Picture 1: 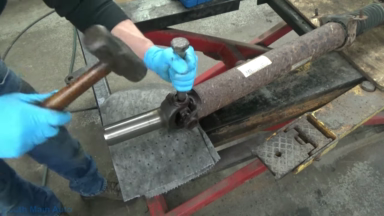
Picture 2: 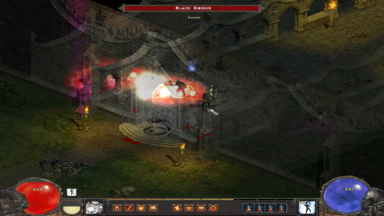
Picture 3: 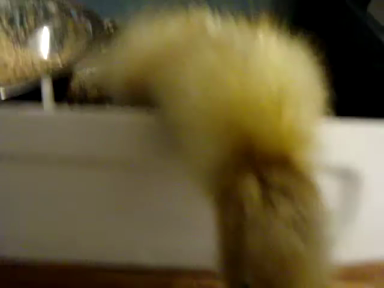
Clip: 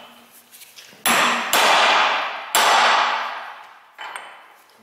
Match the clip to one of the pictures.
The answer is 1